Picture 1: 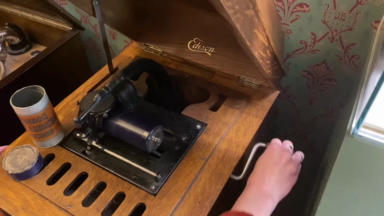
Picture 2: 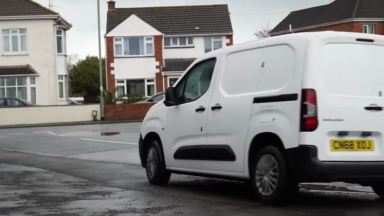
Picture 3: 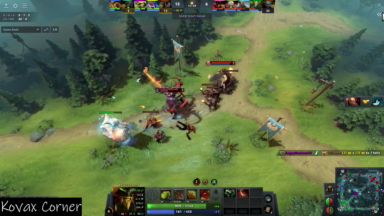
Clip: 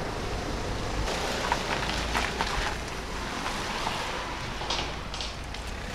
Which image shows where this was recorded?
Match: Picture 2